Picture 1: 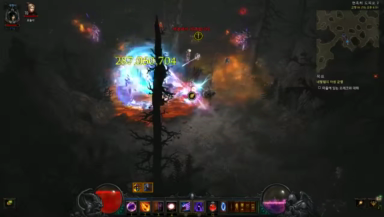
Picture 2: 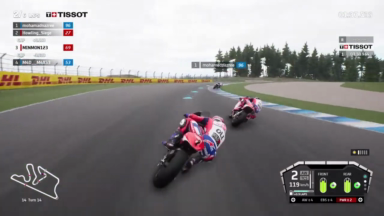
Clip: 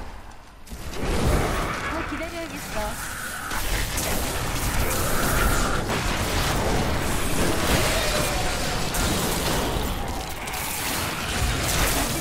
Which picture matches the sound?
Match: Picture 1